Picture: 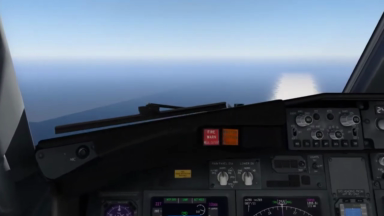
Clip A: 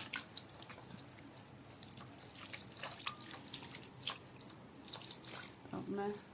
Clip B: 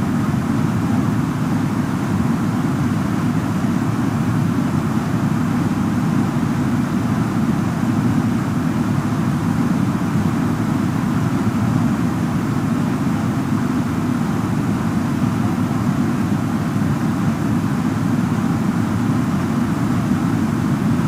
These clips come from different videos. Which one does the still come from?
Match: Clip B